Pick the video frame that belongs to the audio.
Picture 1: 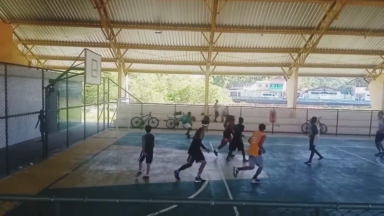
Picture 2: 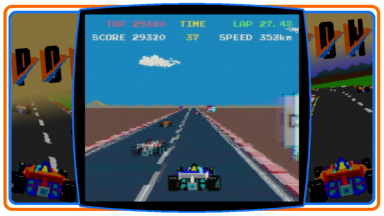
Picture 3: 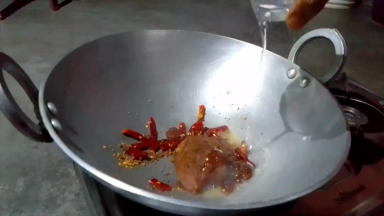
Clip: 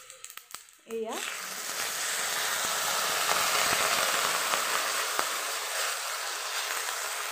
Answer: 3